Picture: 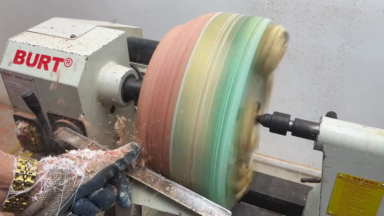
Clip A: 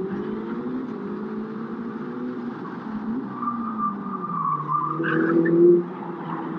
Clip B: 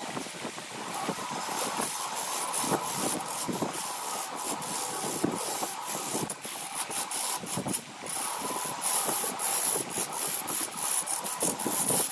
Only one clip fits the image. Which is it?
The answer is B